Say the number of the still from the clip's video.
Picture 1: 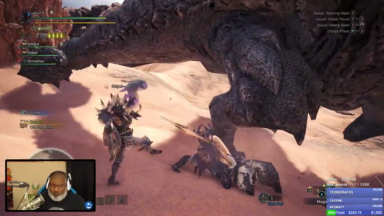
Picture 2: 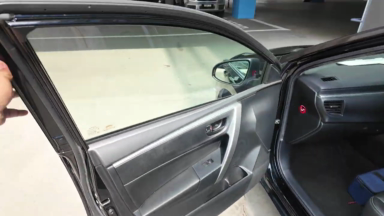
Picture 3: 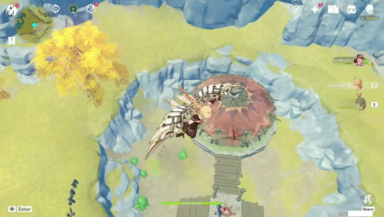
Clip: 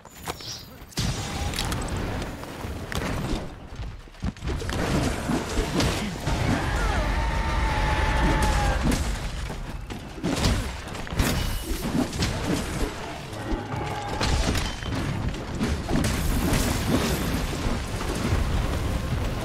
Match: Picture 1